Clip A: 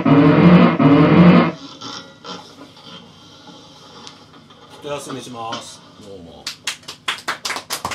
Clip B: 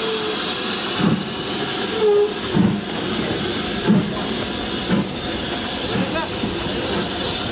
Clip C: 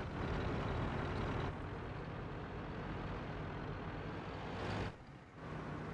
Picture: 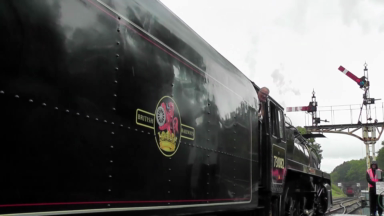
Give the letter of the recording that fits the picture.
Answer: B